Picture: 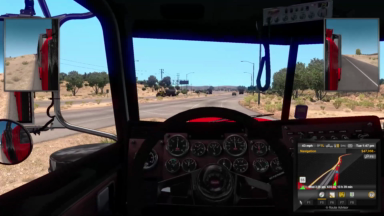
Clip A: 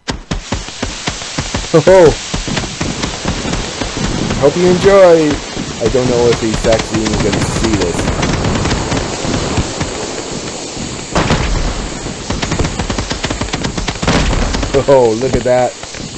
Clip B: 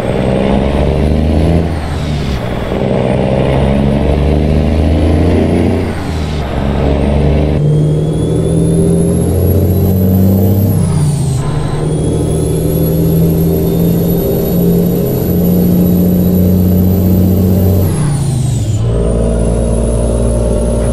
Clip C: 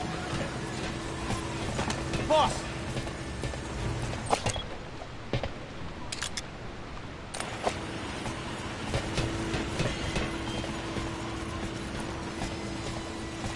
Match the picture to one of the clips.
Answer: B